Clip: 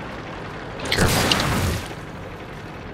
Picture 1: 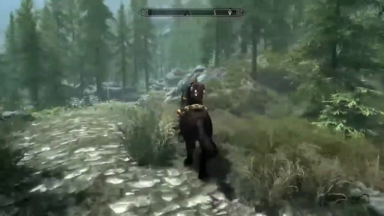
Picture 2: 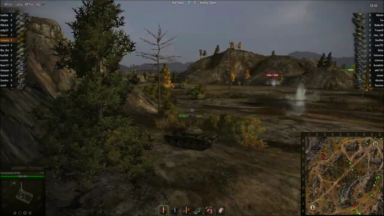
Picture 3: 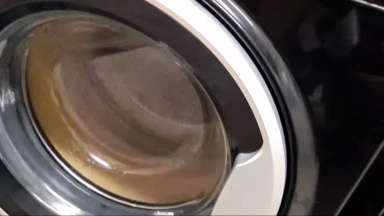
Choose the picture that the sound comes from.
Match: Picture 2